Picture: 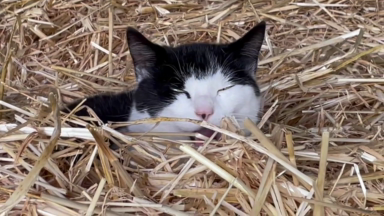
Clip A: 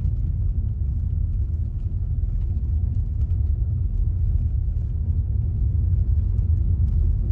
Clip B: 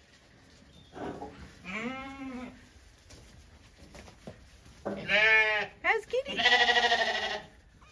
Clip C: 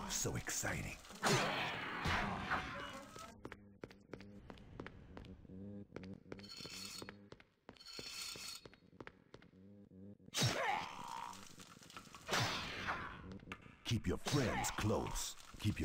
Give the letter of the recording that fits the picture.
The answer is B